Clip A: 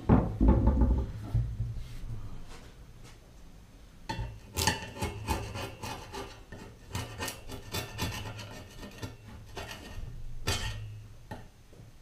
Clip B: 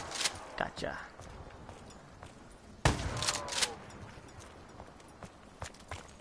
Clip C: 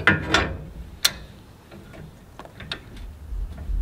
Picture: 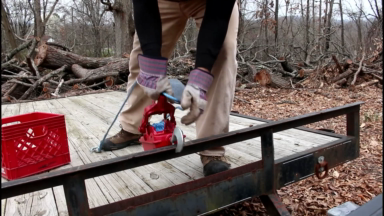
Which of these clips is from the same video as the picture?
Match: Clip C